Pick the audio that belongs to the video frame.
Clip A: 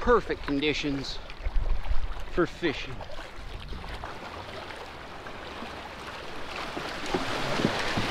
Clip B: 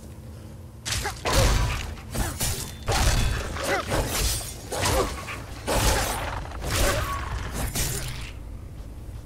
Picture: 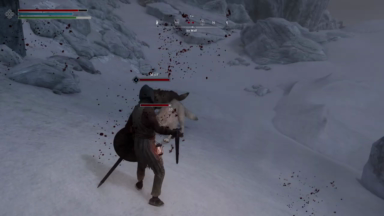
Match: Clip B